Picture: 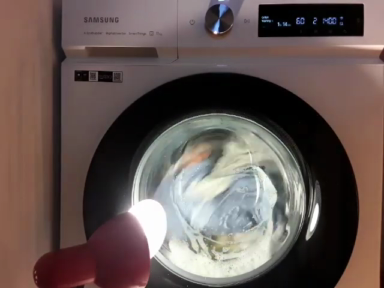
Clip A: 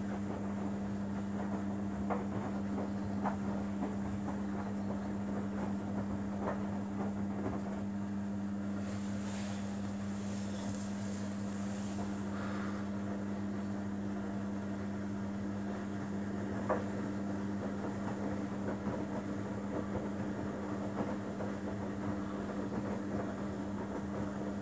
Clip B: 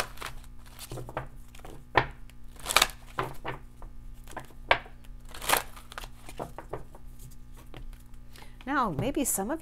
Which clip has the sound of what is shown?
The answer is A